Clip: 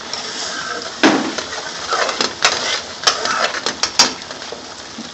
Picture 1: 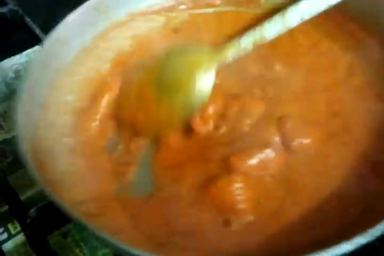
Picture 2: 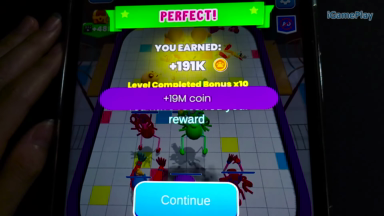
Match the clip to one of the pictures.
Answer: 1